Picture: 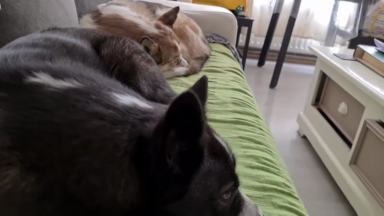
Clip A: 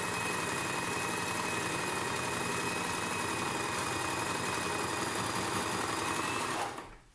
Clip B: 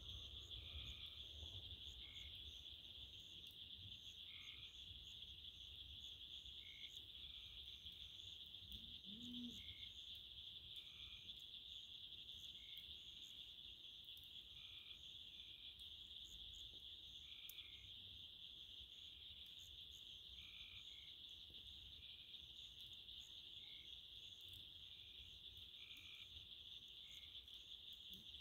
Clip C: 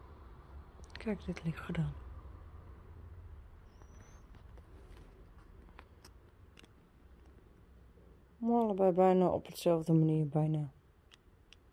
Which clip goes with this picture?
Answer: C